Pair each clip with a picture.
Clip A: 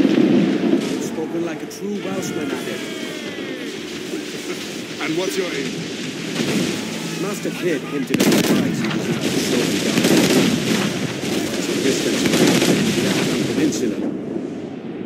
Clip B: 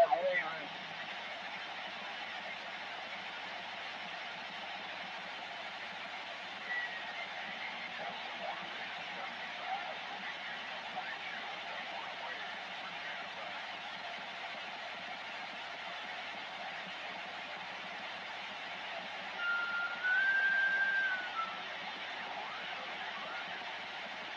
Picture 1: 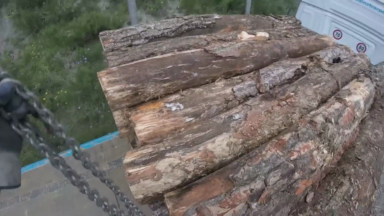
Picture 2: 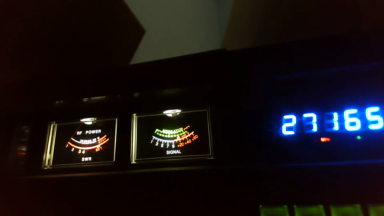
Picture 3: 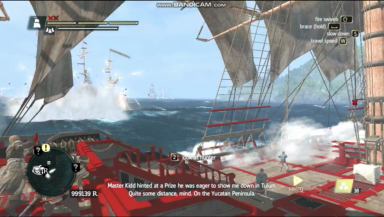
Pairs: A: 3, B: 2